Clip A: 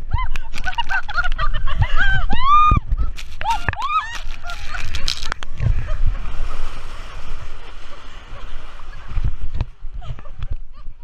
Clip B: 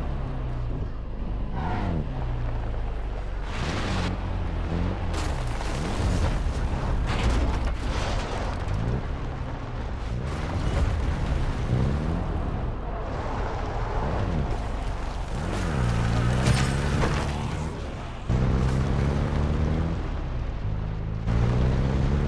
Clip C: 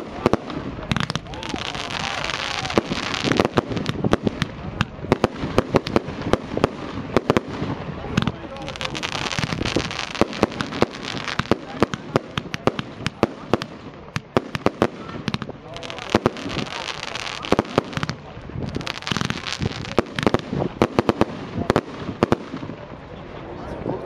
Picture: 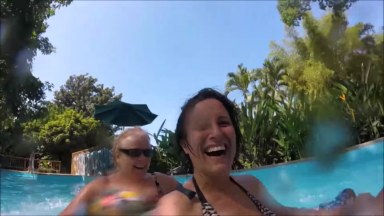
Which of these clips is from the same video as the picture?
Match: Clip A